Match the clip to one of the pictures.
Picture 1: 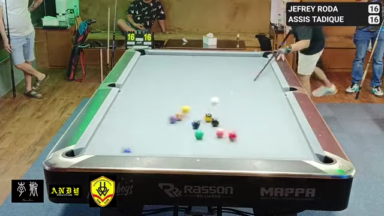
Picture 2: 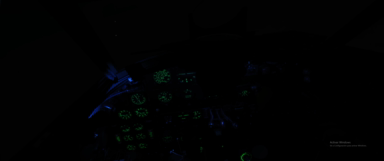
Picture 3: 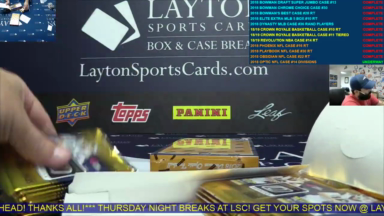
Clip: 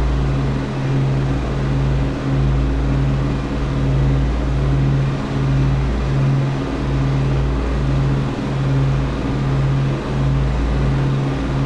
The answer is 2